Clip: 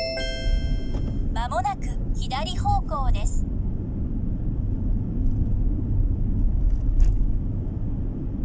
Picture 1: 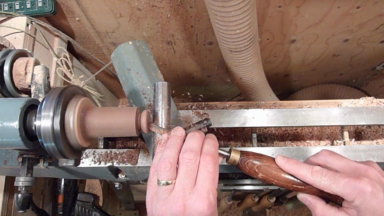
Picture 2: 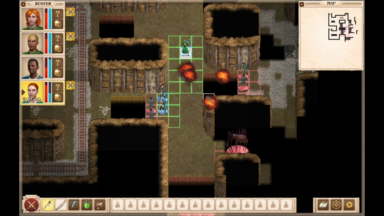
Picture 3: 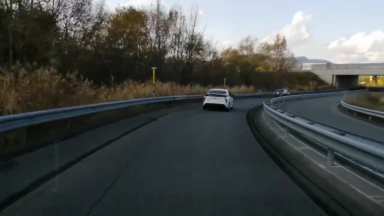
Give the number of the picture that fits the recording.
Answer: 3